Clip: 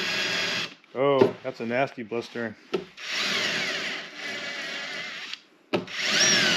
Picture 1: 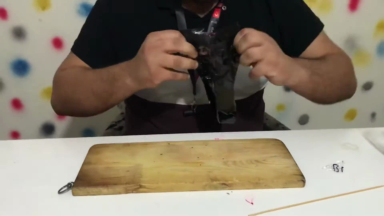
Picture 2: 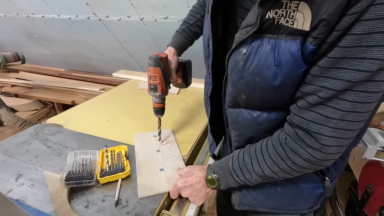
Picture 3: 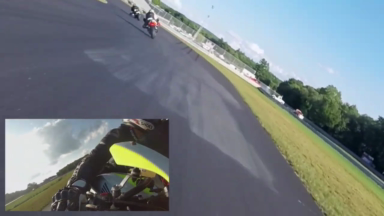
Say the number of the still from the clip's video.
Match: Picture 2